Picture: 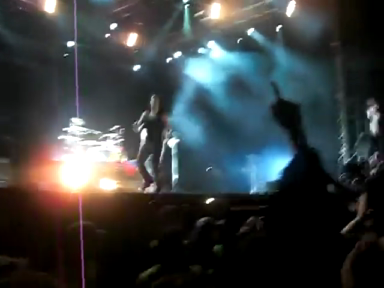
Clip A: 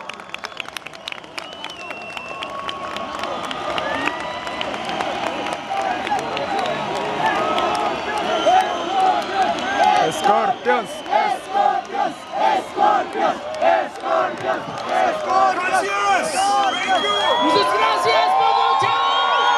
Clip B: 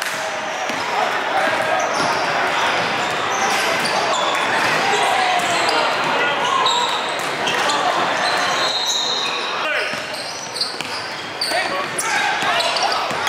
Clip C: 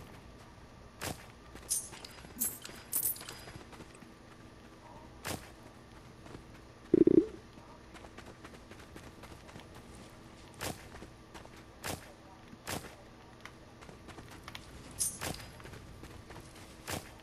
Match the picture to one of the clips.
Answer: A